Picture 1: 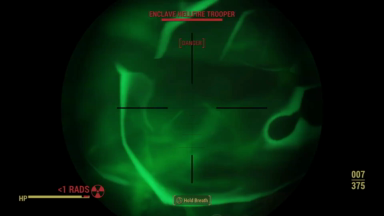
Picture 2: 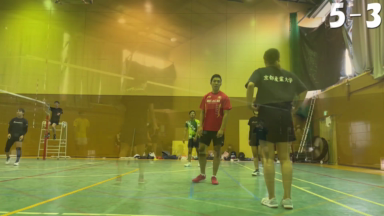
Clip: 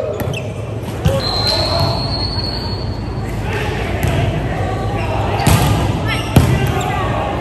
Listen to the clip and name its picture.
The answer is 2